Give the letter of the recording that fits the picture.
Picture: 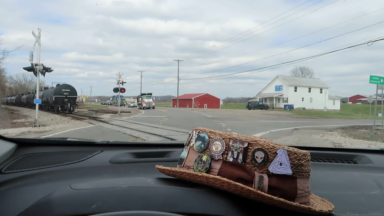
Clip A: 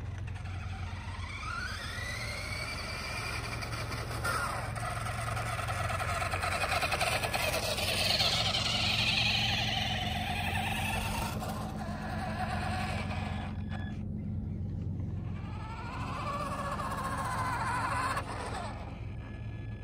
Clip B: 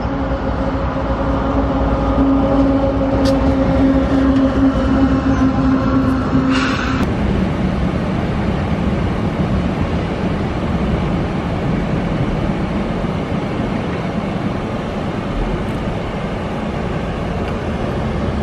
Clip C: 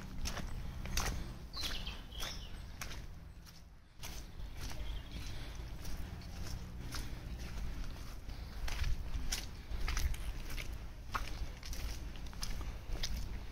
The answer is B